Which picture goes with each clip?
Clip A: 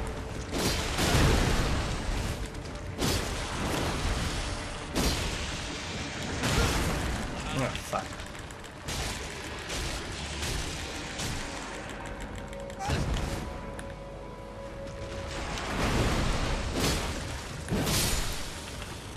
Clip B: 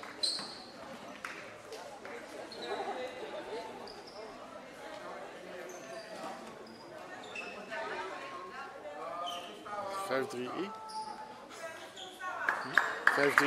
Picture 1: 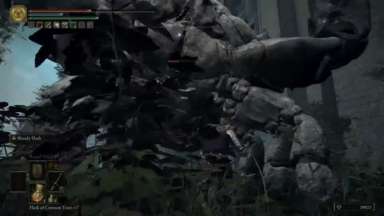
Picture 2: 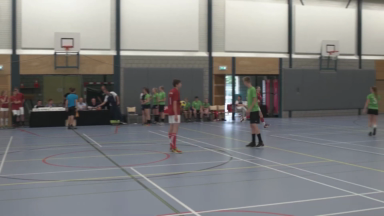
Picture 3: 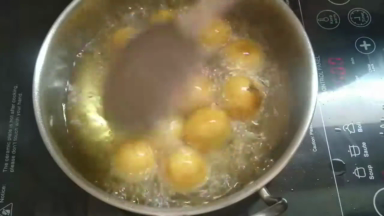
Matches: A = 1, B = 2